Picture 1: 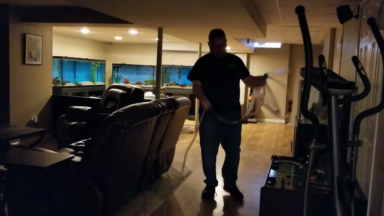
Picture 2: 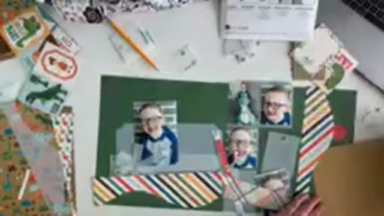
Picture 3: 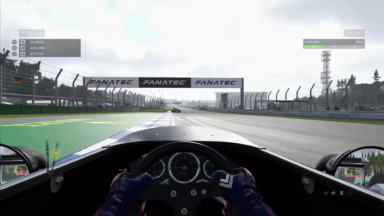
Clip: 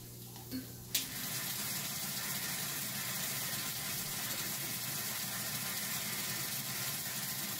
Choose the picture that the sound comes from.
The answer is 1